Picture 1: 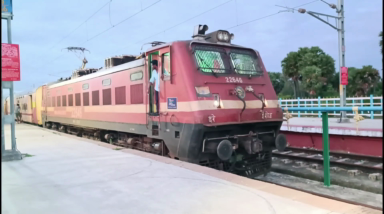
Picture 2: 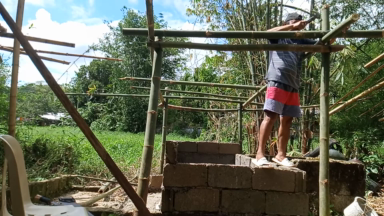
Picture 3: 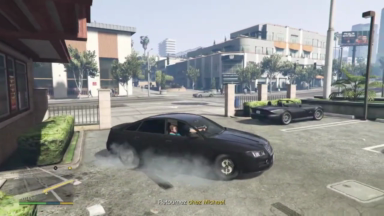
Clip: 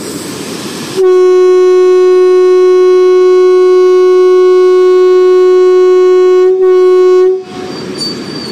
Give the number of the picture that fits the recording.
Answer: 1